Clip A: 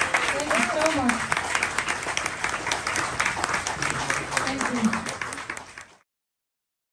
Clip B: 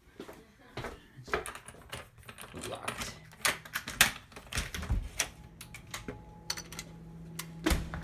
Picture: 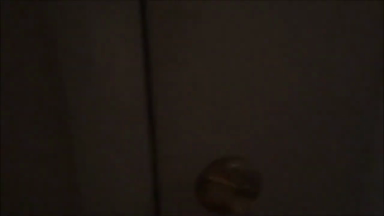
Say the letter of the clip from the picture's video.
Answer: B